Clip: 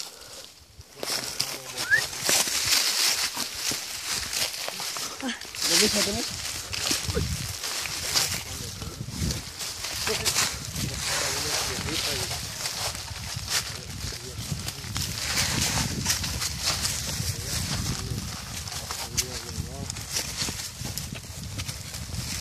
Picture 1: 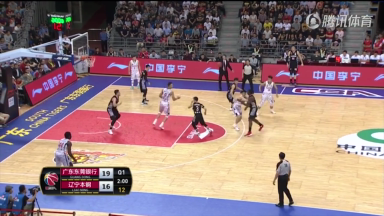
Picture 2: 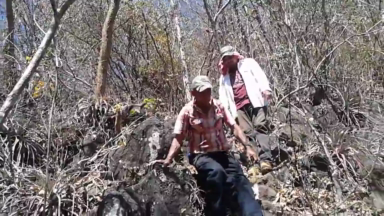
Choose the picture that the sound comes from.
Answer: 2